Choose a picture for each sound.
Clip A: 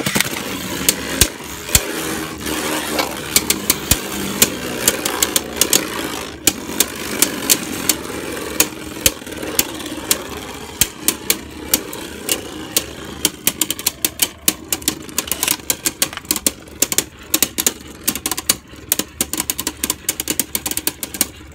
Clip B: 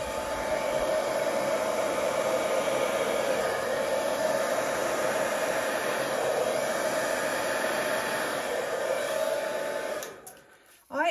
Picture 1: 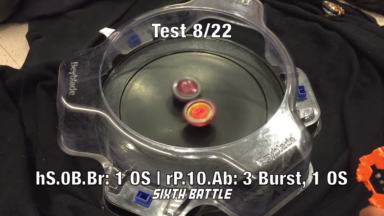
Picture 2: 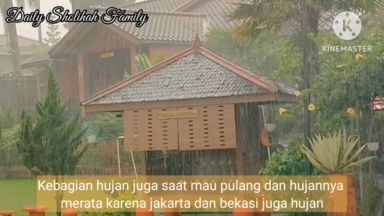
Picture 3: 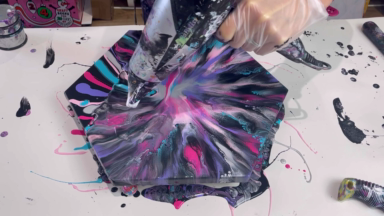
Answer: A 1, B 3